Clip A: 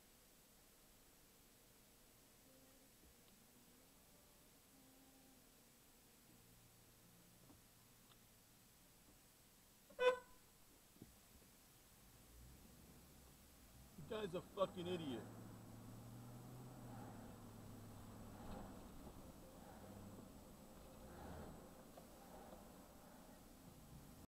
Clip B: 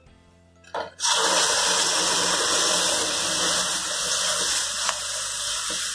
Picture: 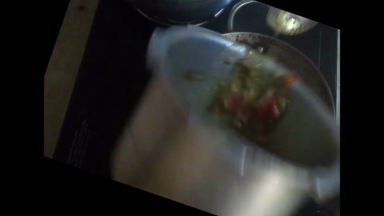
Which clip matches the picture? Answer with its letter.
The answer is B